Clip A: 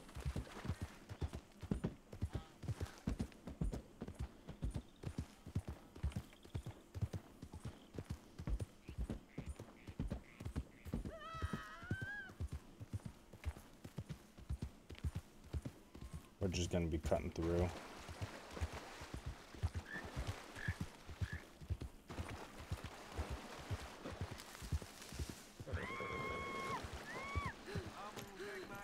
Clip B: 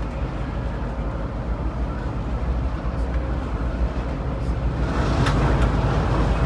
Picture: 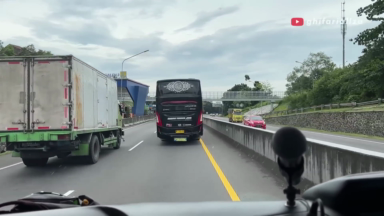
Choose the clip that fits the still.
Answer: B